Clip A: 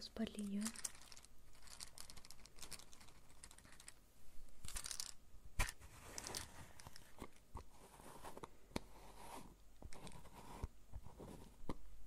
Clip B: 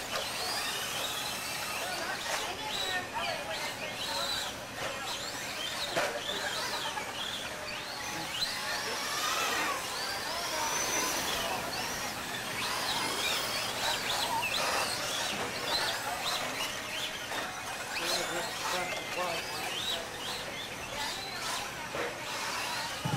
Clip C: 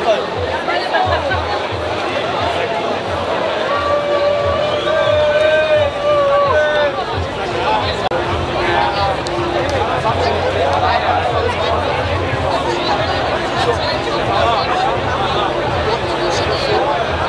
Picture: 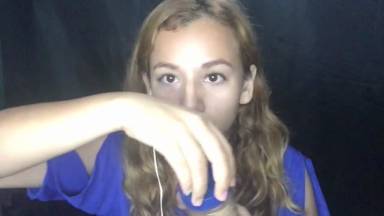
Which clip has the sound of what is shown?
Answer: A